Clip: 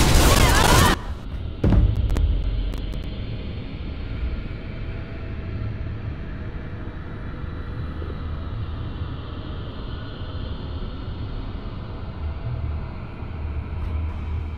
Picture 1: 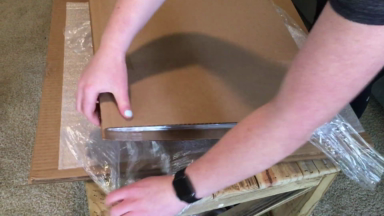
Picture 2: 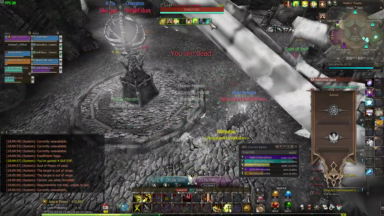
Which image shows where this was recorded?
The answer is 2